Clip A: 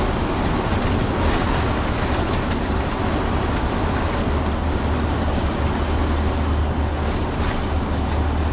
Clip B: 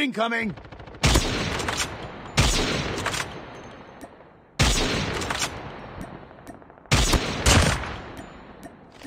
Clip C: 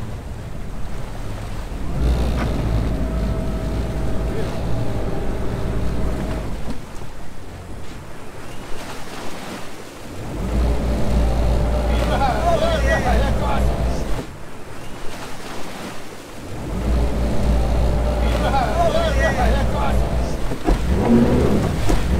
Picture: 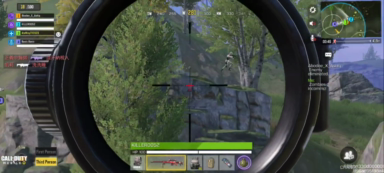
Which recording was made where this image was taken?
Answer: B